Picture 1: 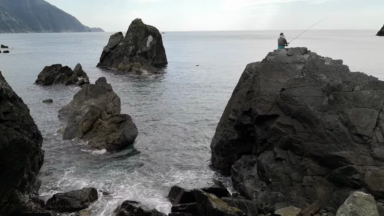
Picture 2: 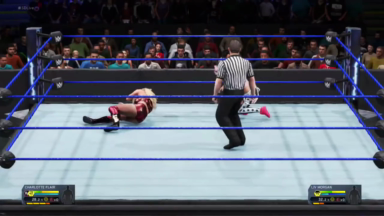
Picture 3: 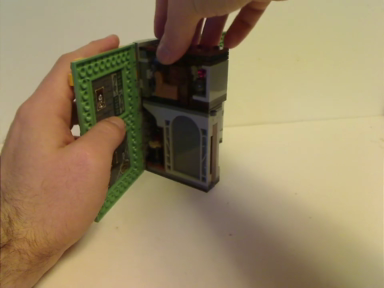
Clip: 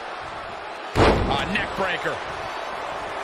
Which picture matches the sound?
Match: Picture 2